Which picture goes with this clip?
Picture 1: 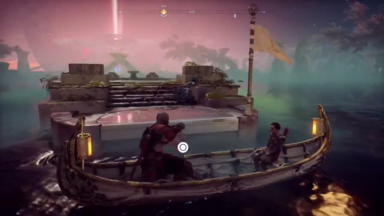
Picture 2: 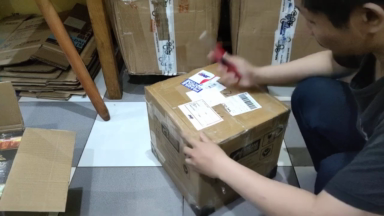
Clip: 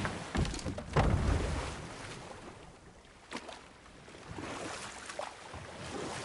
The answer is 1